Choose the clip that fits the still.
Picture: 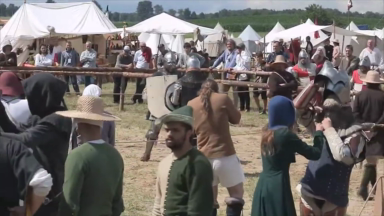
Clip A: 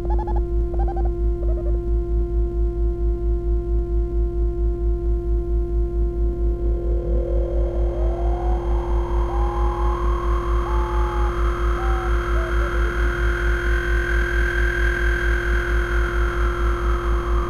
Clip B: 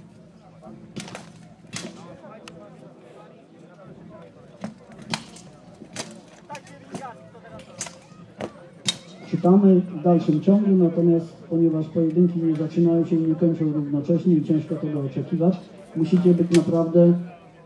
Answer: B